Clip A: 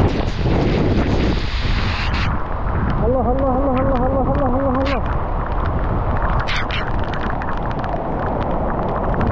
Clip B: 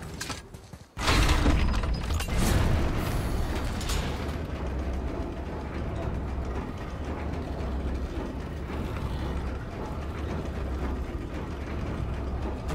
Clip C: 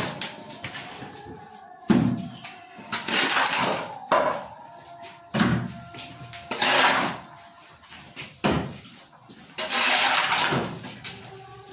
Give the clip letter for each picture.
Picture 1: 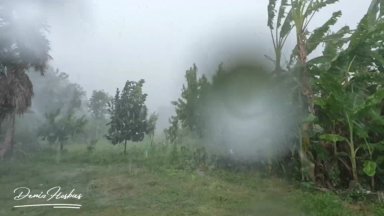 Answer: A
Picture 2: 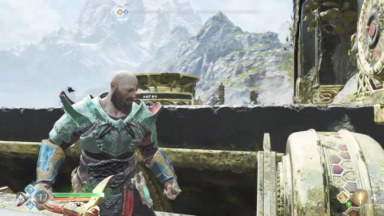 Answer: B